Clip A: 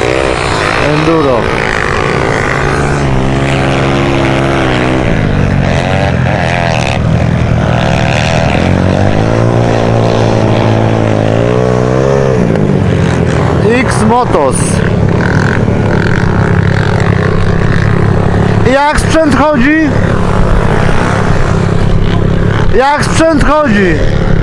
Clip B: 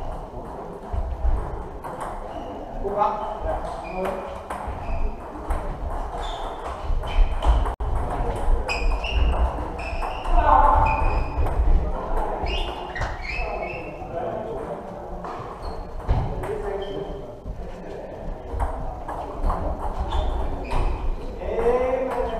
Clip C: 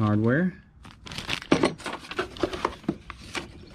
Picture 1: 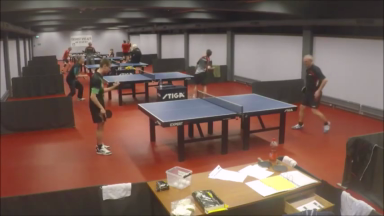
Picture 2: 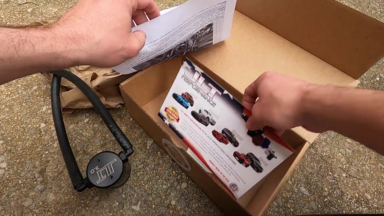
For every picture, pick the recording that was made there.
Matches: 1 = B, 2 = C